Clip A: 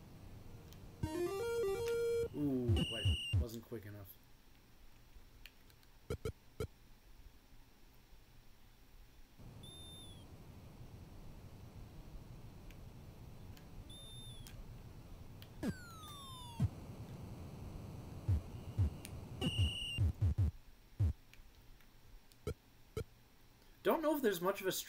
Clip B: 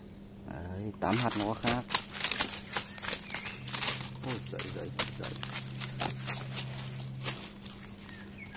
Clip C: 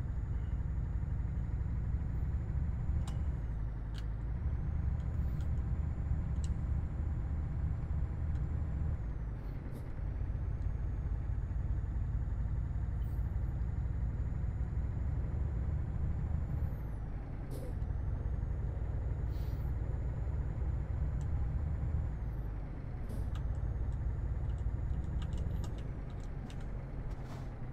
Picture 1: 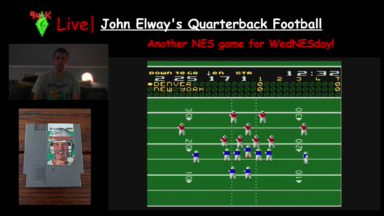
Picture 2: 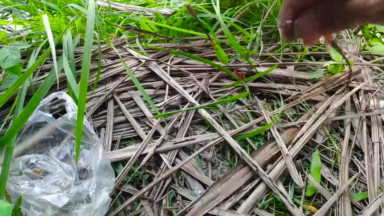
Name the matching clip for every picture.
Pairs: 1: A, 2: B